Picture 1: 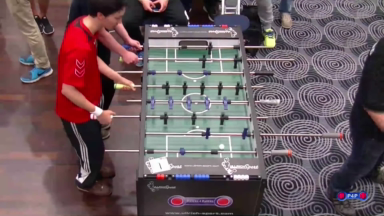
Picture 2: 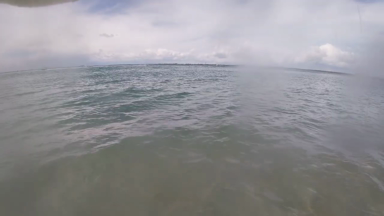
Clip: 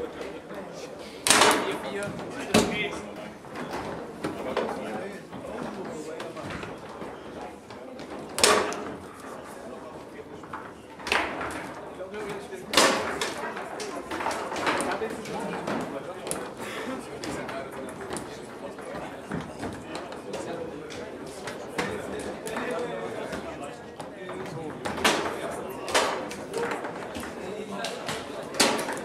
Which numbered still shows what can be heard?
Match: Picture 1